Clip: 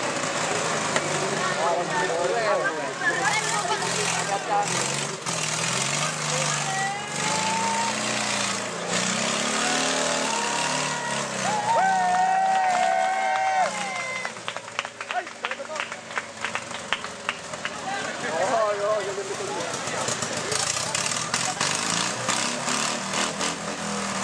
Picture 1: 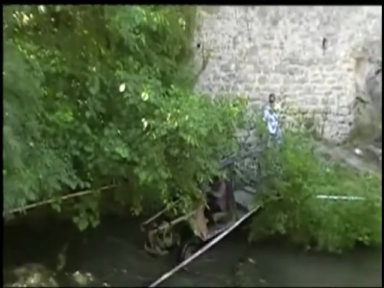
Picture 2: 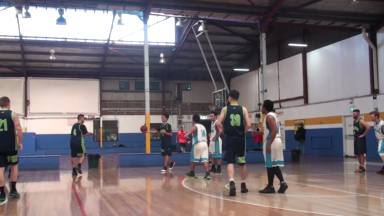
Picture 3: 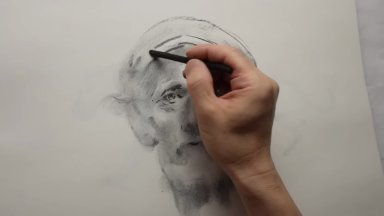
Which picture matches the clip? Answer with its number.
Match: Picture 1